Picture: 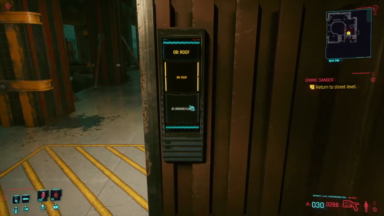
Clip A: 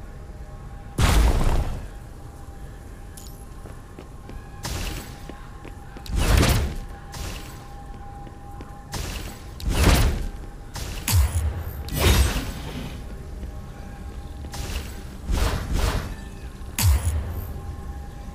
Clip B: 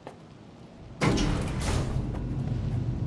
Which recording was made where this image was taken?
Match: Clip B